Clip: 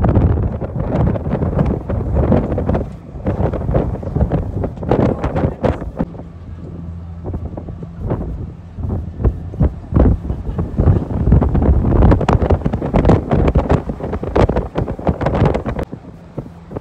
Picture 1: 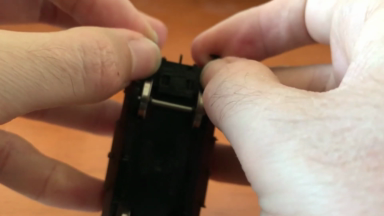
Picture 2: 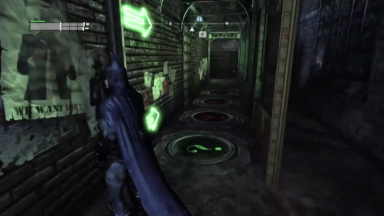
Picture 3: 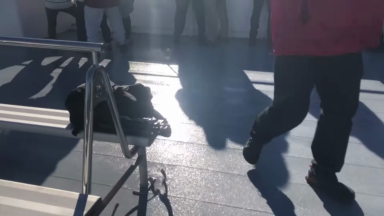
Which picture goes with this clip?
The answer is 3